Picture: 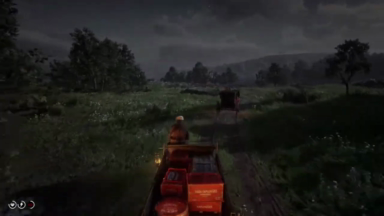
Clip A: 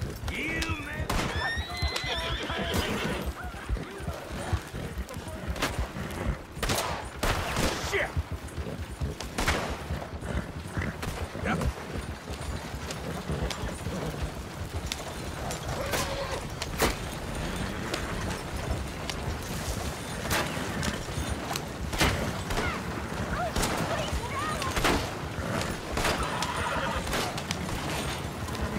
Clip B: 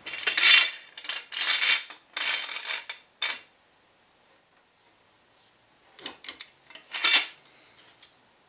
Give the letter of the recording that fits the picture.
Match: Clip A